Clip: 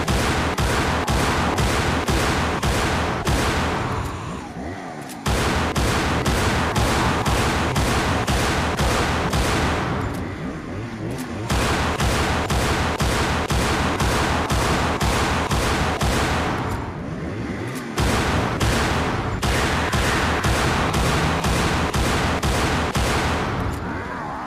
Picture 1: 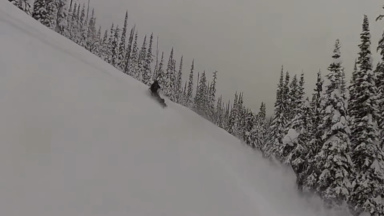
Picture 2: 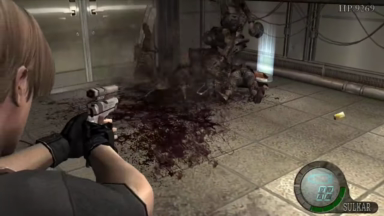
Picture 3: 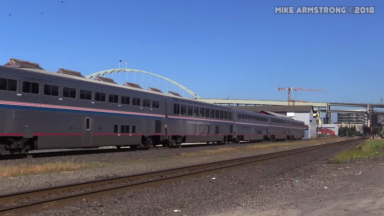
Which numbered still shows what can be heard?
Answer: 2